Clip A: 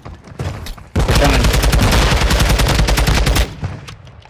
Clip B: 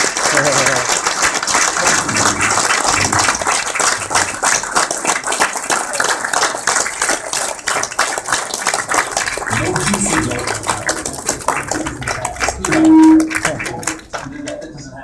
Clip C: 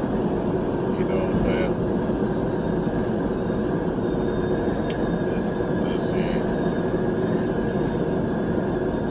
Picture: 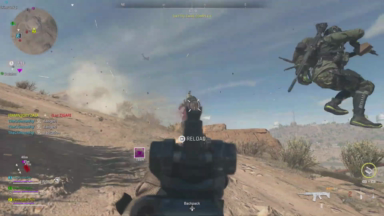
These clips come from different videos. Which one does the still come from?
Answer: A